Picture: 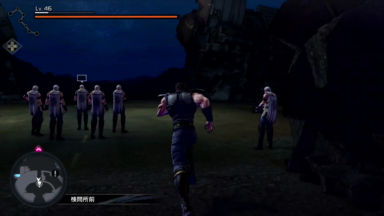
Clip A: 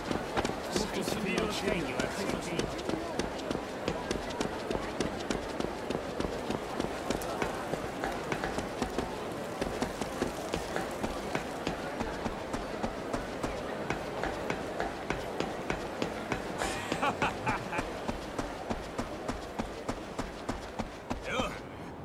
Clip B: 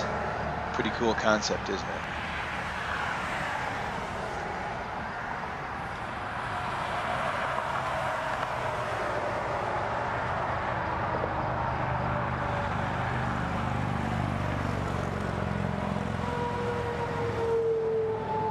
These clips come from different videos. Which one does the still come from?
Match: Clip A